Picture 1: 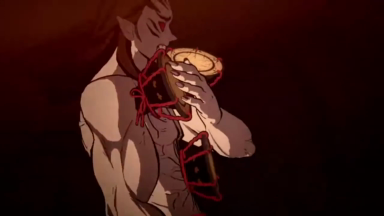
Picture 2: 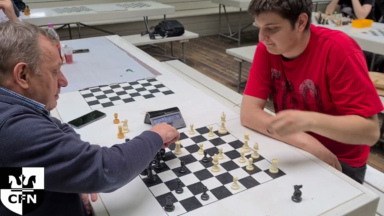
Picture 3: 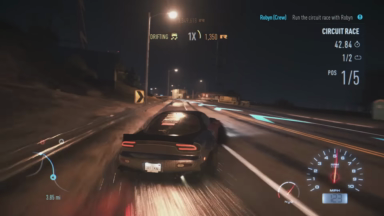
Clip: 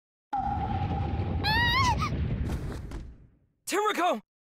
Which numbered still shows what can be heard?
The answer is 1